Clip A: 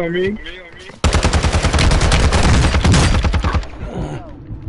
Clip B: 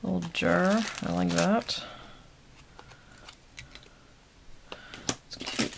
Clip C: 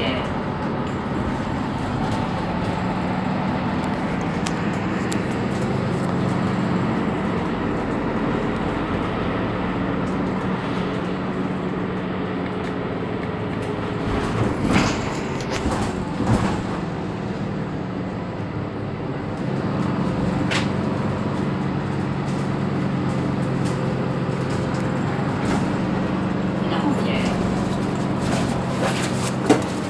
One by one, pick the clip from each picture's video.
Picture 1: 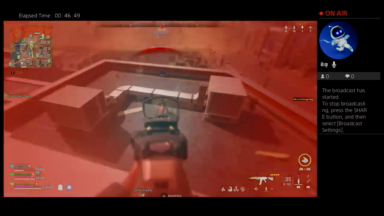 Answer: A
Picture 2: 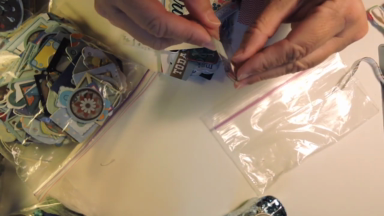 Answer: B